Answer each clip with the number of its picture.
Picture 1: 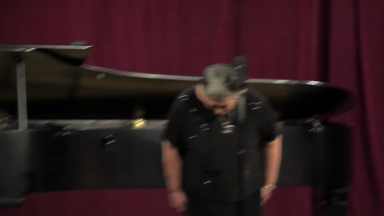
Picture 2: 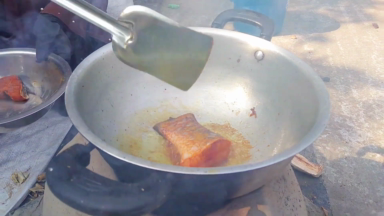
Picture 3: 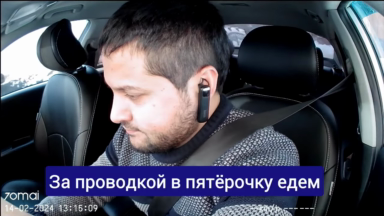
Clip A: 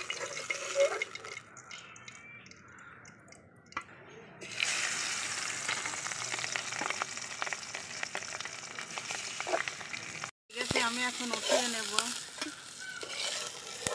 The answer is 2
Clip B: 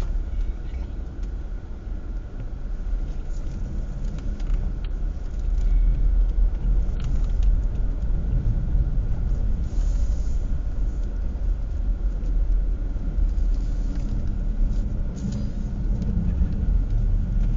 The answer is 3